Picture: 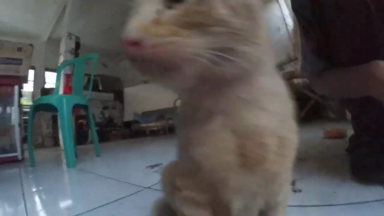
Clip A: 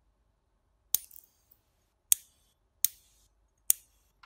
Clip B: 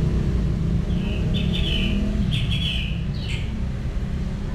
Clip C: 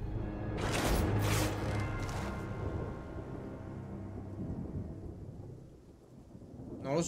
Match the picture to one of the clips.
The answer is B